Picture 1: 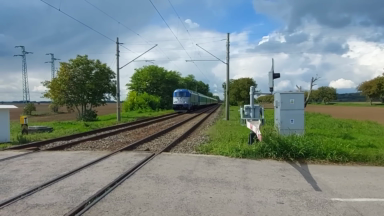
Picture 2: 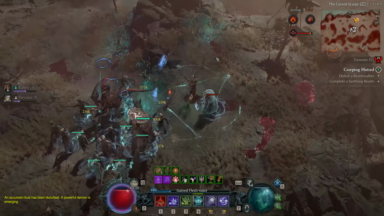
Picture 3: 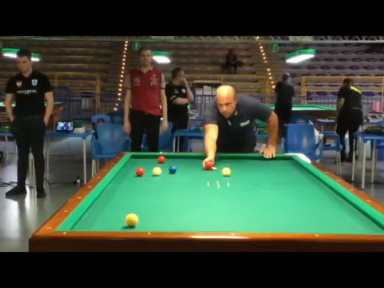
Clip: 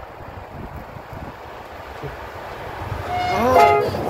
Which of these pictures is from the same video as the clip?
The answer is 1